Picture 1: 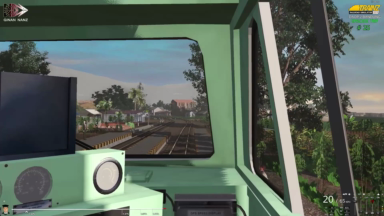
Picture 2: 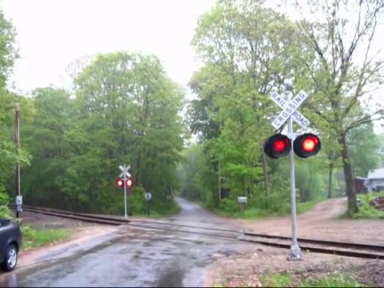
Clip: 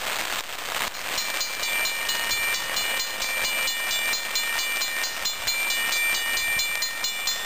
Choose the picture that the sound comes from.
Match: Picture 2